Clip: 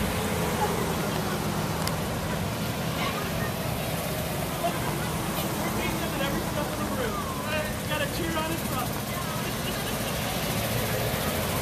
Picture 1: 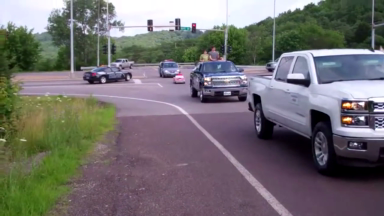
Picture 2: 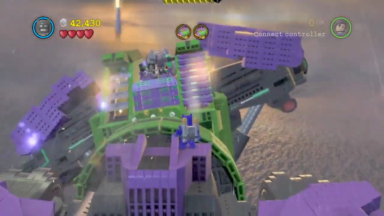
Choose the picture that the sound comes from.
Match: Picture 1